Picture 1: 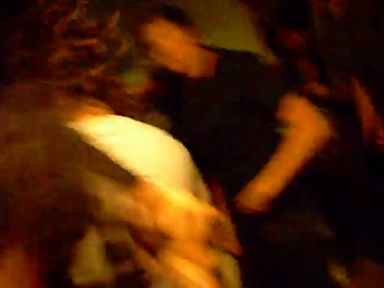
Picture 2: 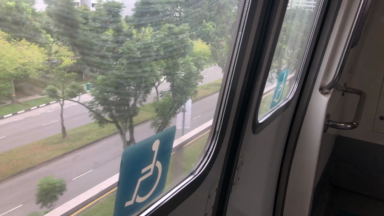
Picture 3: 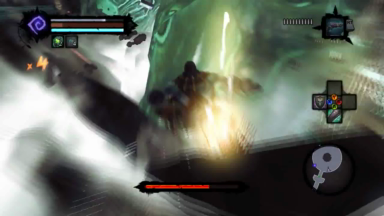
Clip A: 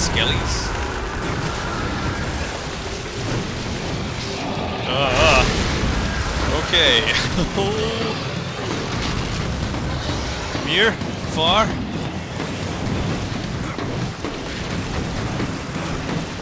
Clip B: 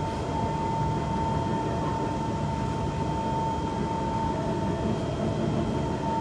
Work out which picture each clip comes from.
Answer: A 3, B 2